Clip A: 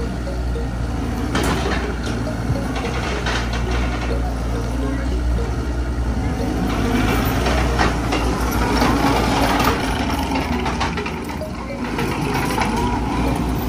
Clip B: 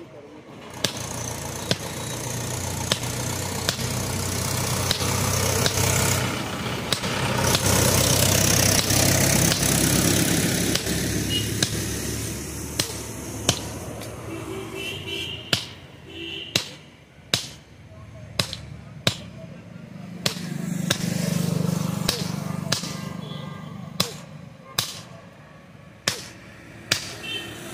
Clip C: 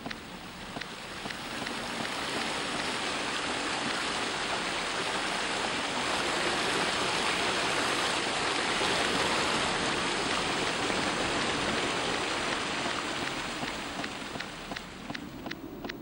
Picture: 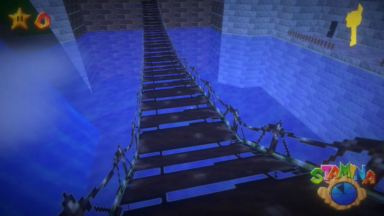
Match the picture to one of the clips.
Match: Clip C